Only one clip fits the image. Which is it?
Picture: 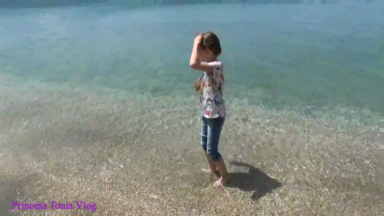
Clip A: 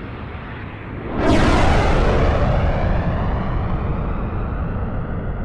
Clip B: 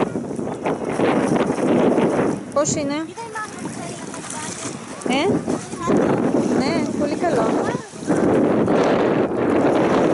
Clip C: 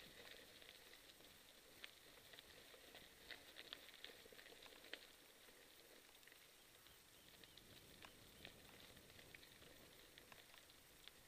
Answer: B